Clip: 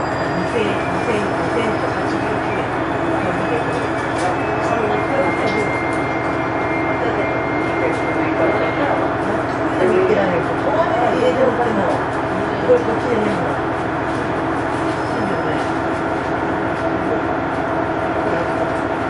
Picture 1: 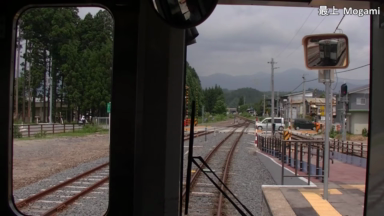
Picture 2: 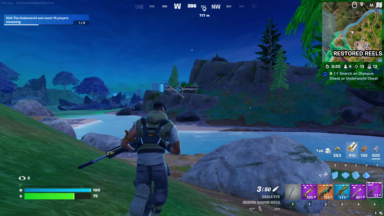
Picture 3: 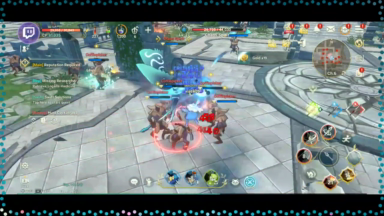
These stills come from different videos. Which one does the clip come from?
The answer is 1